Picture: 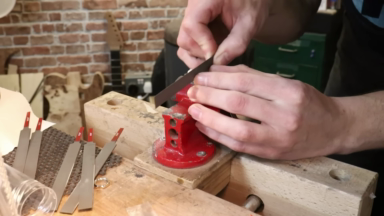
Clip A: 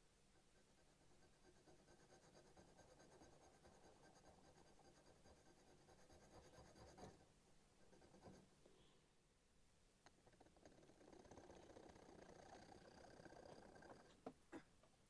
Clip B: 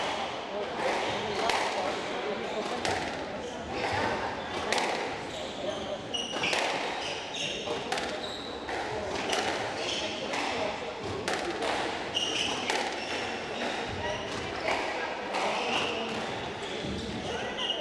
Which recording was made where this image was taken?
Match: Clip A